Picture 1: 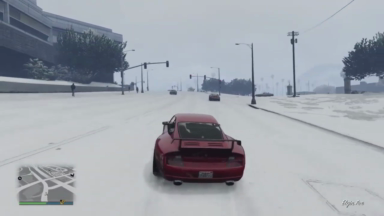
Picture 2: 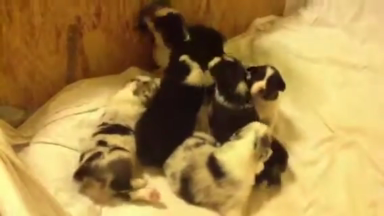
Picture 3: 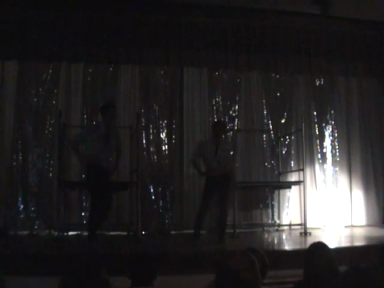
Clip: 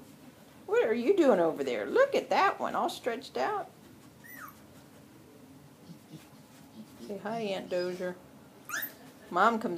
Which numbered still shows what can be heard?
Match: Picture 2